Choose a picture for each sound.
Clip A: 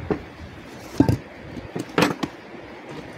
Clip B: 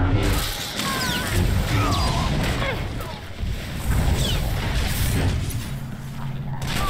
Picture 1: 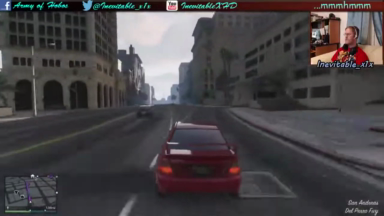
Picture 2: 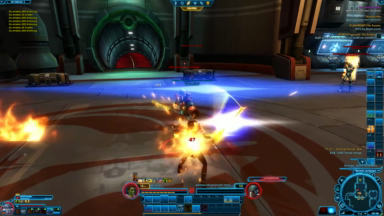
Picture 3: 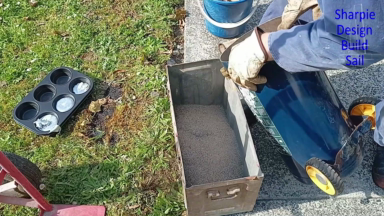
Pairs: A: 3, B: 2